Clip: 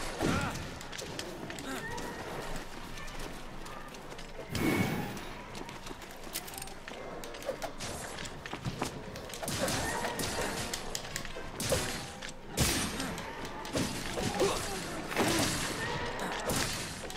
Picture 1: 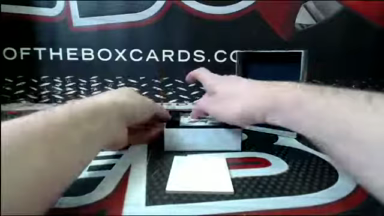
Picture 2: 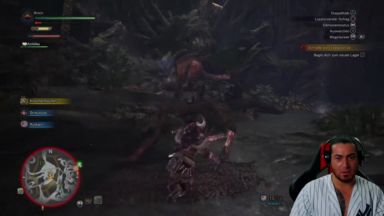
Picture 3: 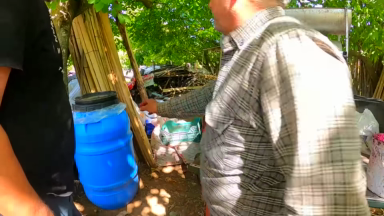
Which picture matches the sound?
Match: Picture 2